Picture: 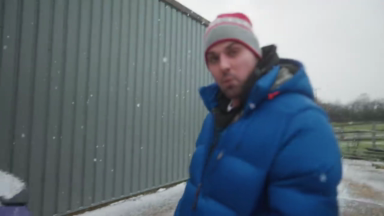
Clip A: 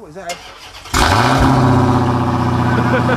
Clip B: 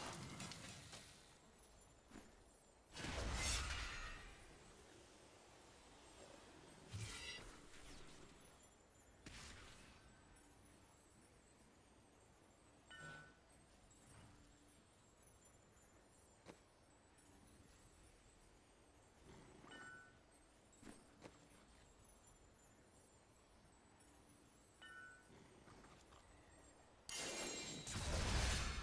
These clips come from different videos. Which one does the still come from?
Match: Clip A